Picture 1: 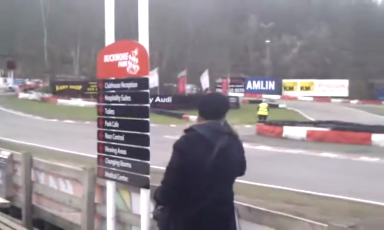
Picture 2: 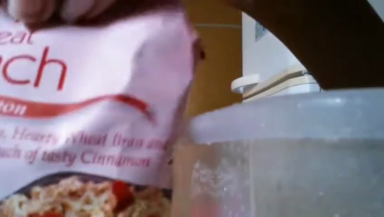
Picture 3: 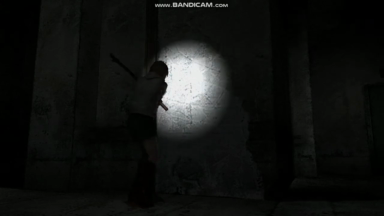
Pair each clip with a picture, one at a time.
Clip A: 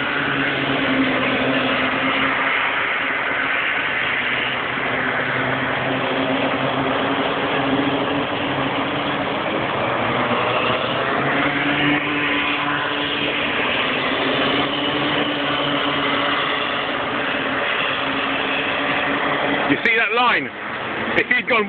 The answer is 1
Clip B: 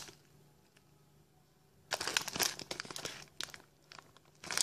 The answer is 2